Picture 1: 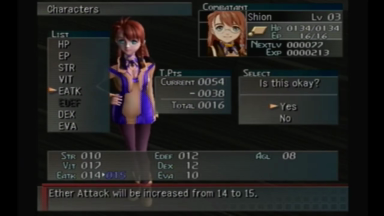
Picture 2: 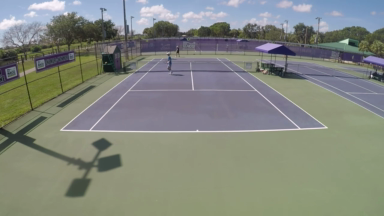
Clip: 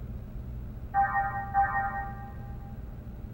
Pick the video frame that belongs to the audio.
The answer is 1